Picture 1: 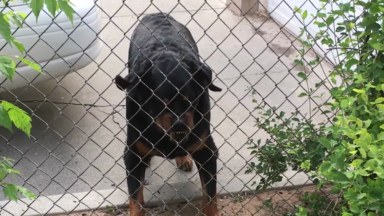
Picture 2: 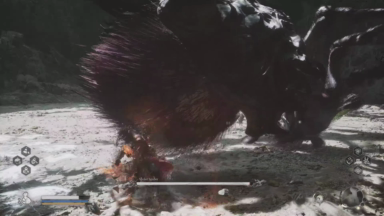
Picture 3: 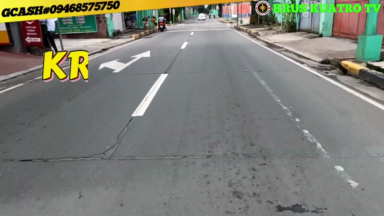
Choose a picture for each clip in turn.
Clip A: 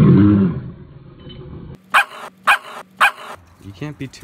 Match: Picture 1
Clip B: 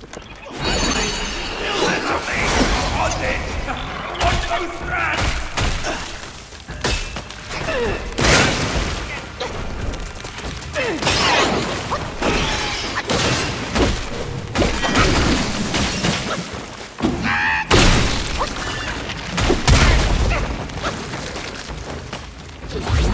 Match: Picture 2